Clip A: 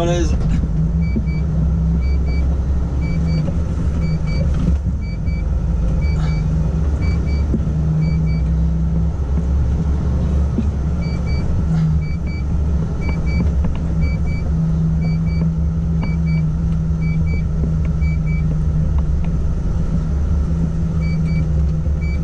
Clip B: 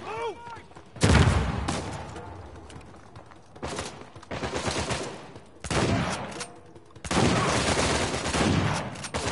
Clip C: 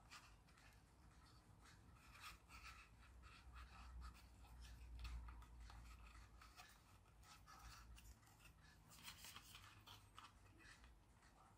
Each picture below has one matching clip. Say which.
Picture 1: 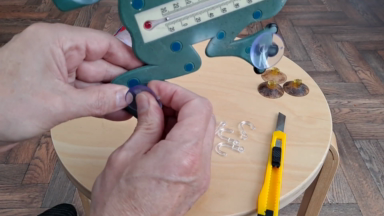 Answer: C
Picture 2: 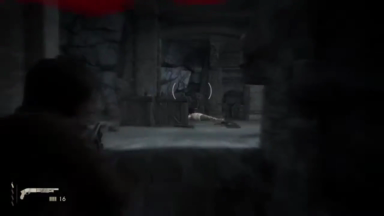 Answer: B